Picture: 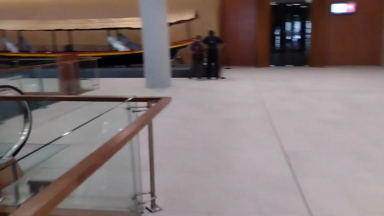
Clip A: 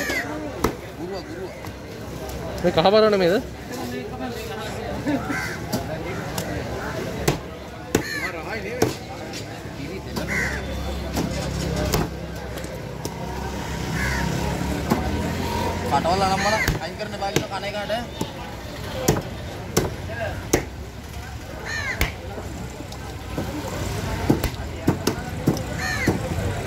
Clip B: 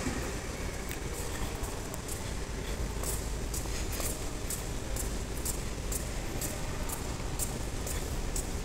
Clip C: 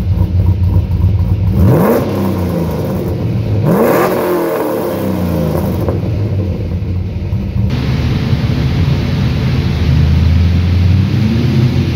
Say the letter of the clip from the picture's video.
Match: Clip B